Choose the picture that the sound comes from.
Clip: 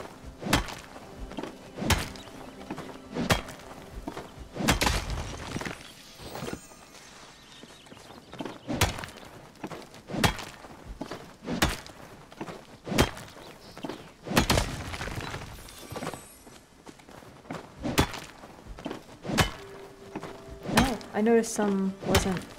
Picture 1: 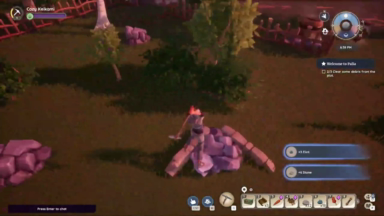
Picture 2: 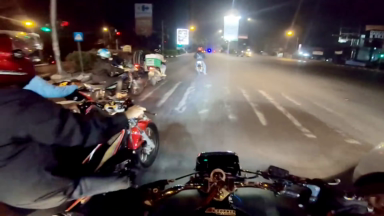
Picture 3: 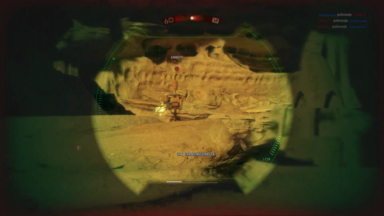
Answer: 1